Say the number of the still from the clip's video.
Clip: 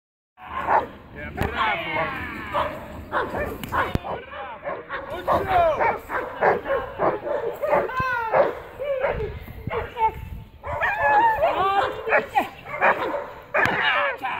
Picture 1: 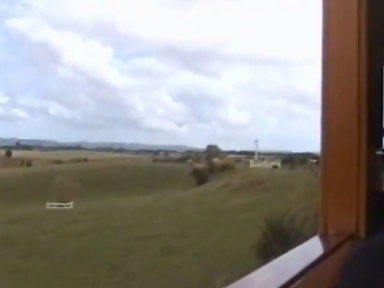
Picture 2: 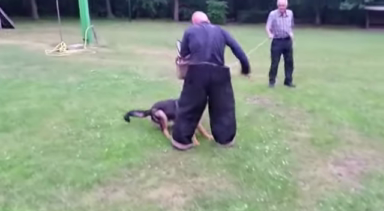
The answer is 2